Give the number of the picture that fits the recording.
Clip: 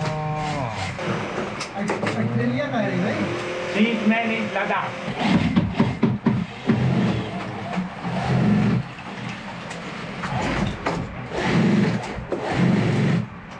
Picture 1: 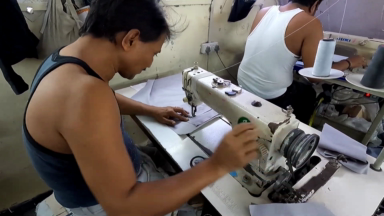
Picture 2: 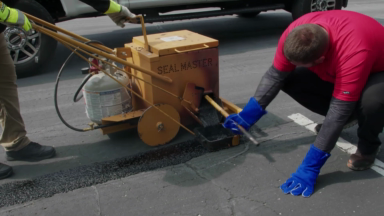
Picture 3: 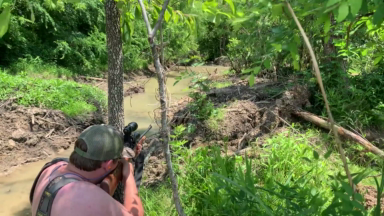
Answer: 1